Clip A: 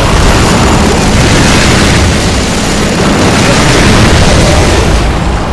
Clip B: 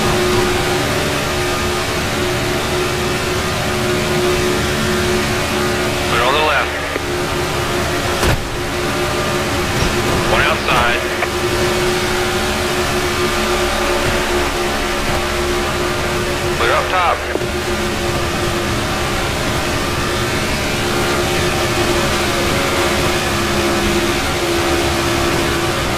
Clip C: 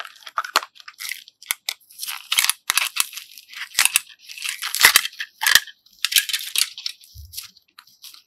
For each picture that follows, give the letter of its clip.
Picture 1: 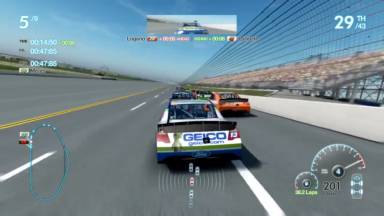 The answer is B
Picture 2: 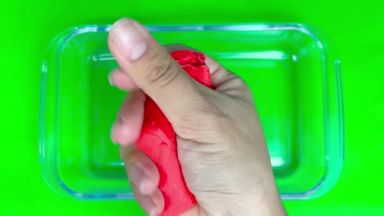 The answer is C